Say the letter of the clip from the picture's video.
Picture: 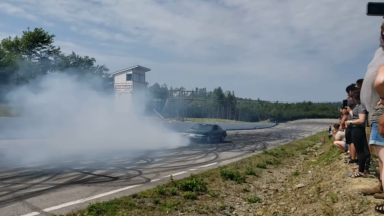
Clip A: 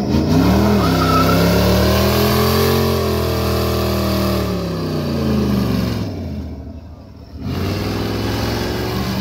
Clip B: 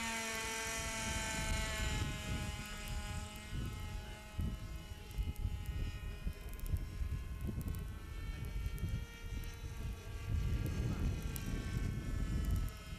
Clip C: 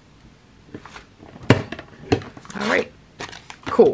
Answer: A